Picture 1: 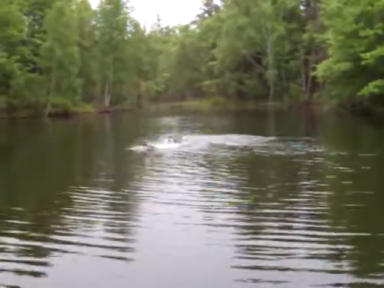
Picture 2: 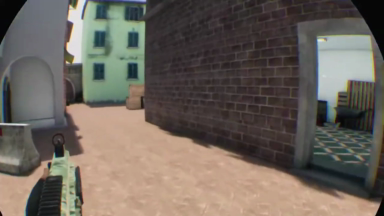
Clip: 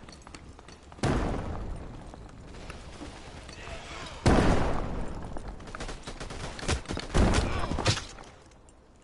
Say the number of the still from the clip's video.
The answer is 2